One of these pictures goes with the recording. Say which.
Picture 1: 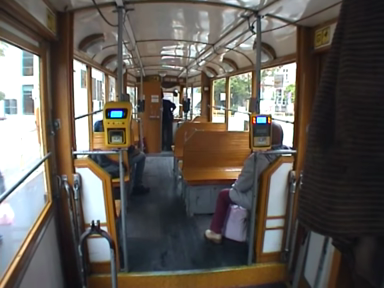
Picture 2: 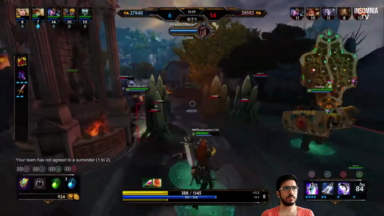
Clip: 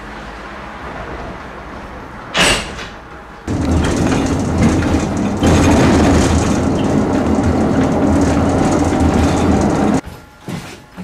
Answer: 1